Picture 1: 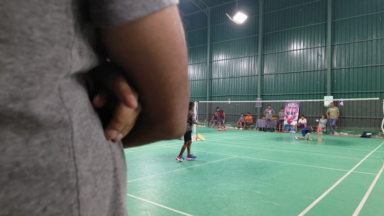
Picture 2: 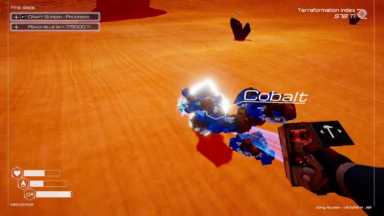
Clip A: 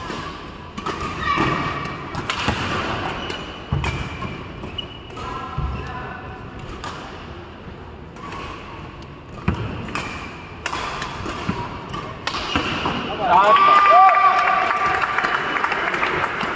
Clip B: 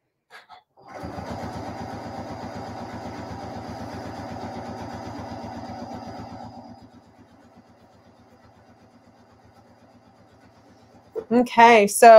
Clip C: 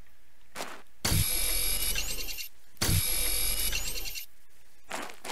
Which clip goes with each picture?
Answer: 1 A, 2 C